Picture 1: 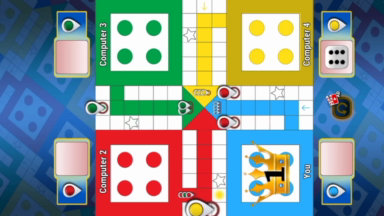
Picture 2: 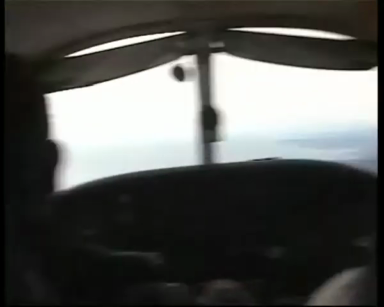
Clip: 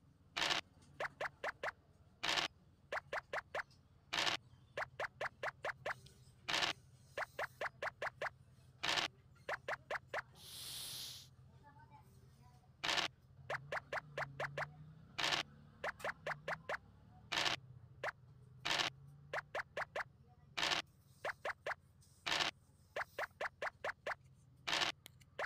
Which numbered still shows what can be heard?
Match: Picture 1